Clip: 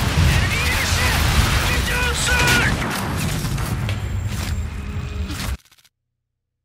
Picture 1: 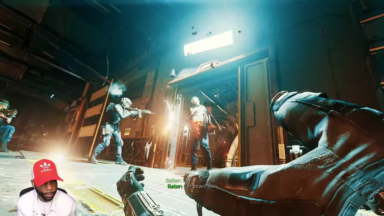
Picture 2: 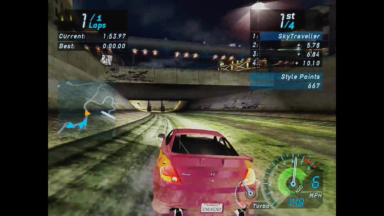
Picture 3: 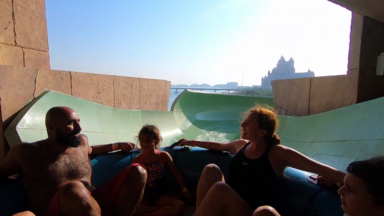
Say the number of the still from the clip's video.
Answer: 1